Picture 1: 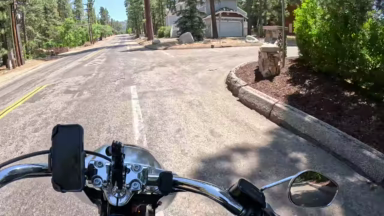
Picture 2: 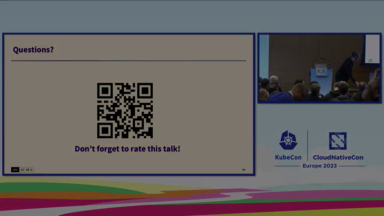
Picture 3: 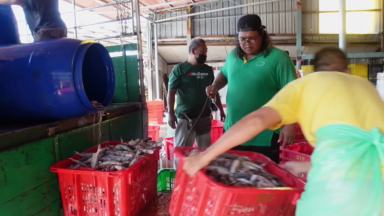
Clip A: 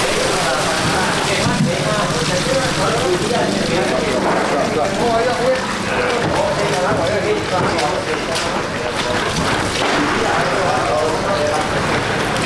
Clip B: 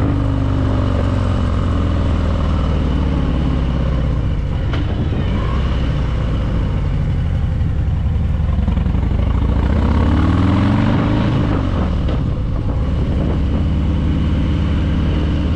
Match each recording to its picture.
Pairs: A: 3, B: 1